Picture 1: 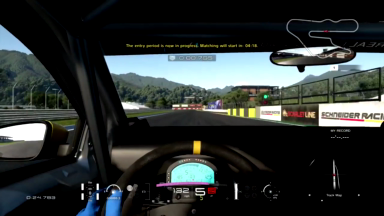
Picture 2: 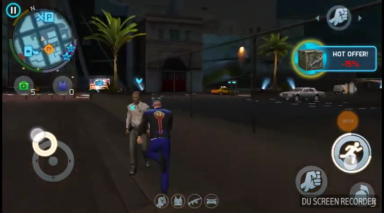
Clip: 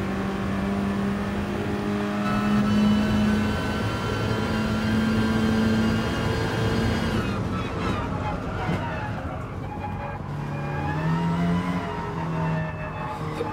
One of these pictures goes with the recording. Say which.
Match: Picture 1